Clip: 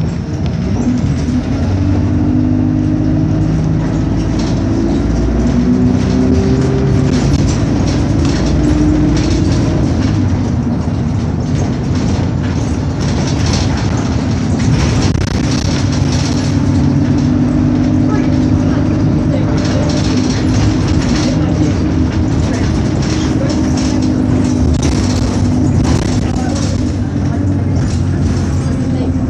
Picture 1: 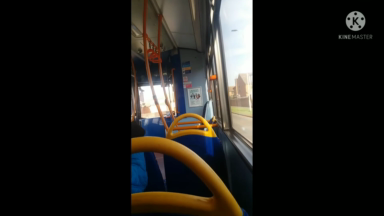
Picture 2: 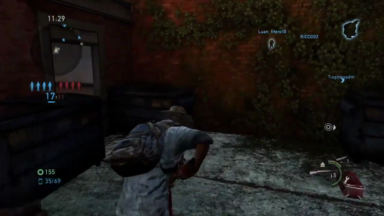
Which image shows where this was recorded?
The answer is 1